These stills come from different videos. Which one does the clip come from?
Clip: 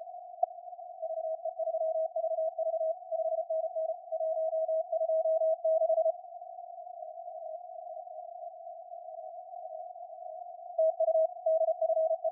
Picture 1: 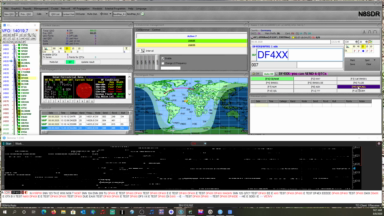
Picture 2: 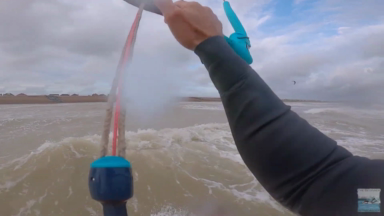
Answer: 1